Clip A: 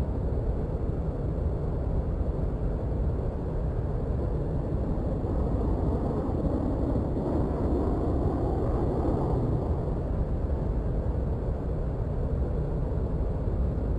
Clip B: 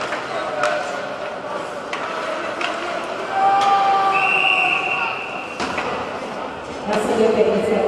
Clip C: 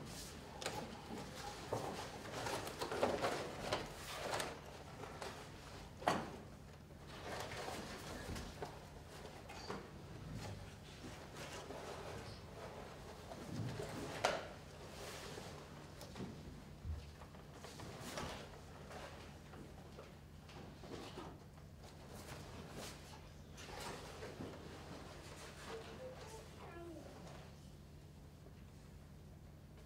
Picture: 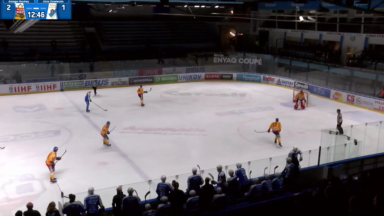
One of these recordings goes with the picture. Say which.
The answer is B